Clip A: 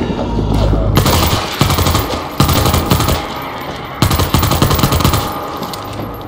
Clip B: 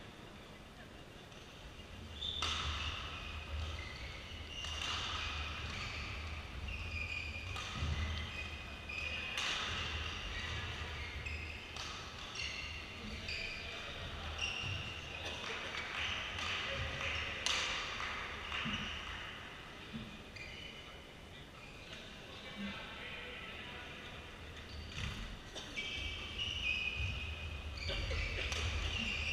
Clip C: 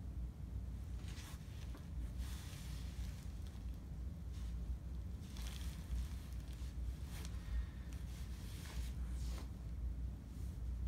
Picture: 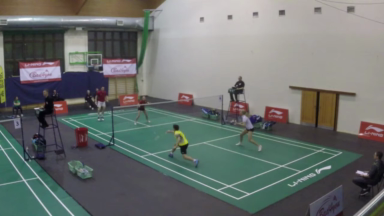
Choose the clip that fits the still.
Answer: B